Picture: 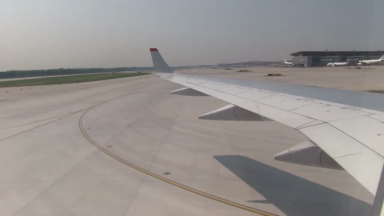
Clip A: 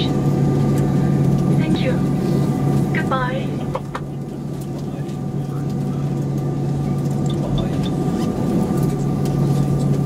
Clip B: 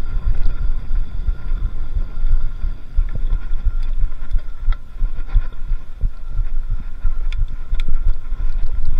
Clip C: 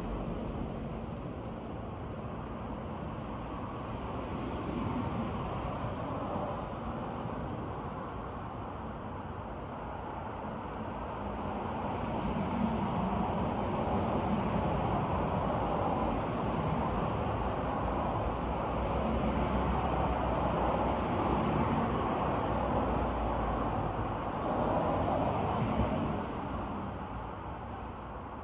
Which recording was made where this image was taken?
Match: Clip A